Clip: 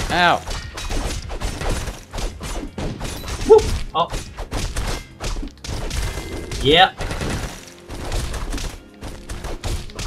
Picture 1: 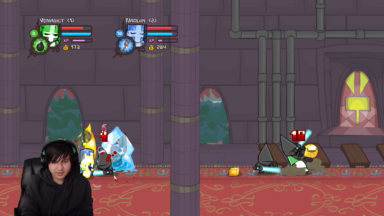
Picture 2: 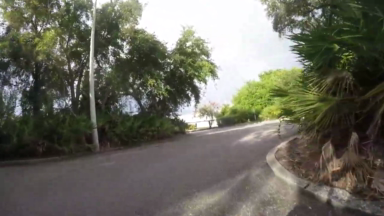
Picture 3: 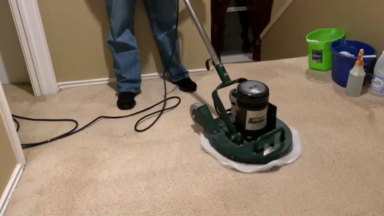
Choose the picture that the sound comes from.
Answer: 1